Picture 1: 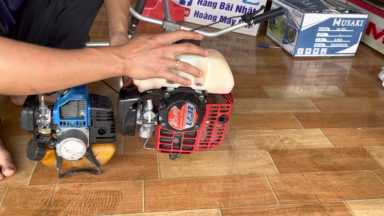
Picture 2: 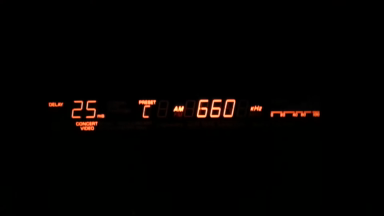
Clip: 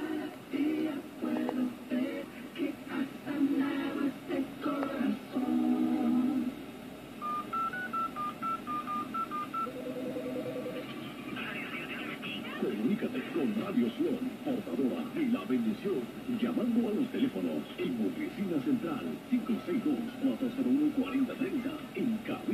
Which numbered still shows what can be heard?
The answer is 2